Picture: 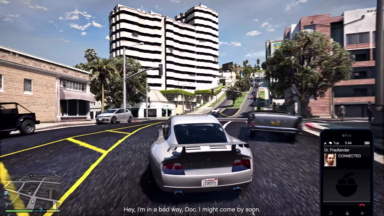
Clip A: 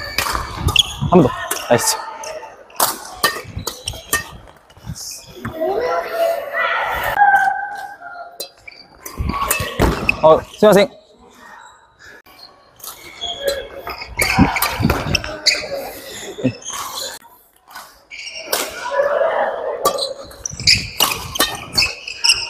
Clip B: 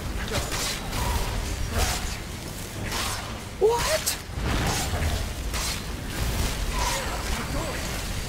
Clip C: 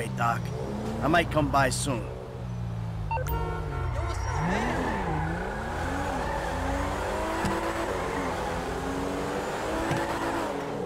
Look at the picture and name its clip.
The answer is C